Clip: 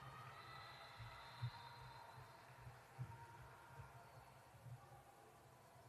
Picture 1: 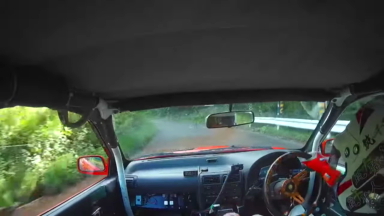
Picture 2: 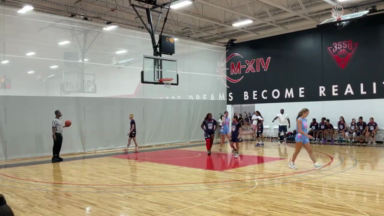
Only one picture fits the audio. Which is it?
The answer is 2